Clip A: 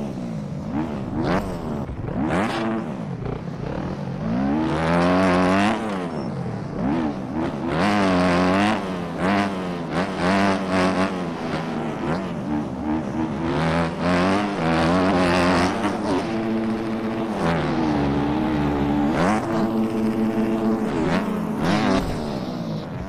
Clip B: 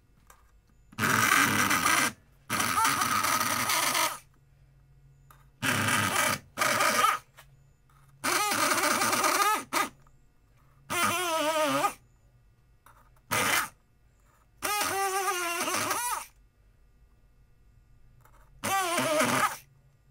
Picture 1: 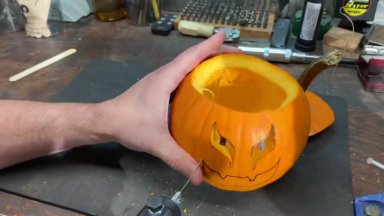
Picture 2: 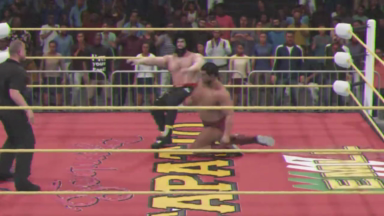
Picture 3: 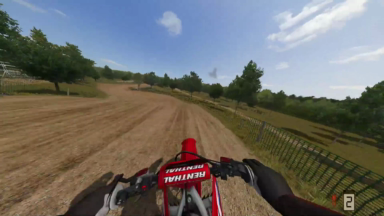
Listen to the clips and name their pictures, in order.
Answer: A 3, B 1